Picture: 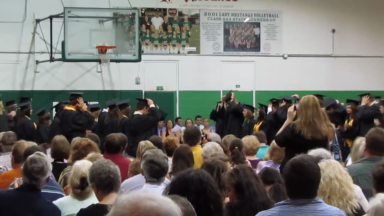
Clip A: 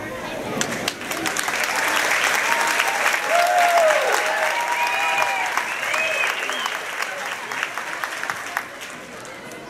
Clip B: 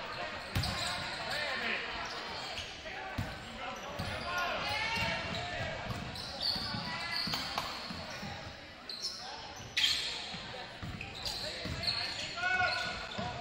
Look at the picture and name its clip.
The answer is A